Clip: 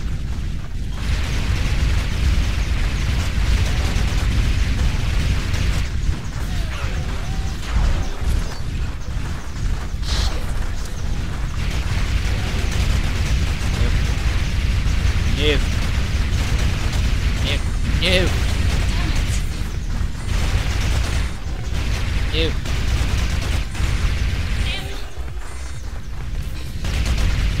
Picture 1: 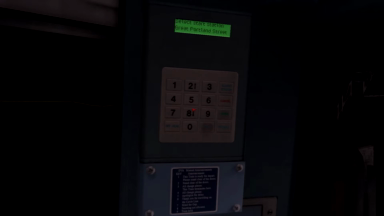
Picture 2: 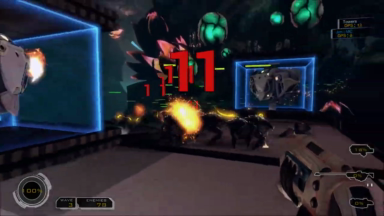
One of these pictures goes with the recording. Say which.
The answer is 2